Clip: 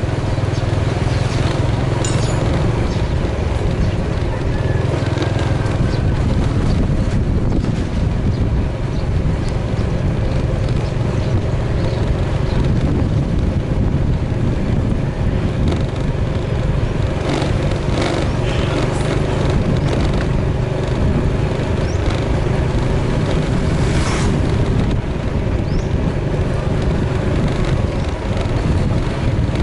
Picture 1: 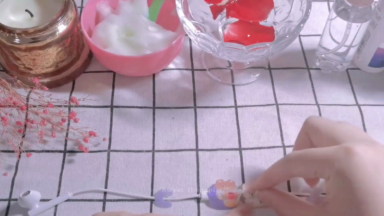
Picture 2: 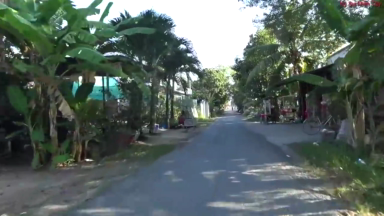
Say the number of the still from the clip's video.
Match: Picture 2